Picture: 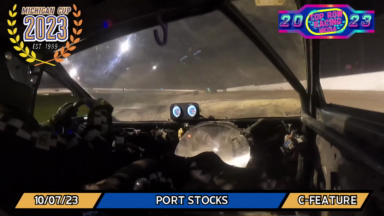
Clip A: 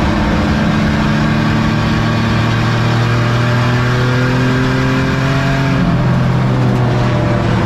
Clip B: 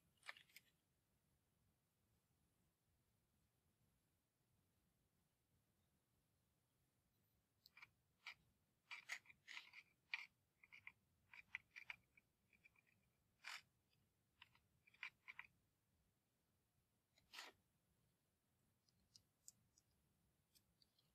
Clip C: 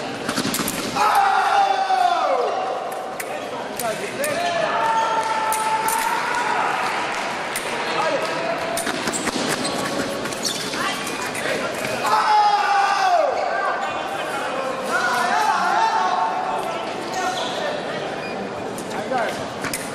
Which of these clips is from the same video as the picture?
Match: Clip A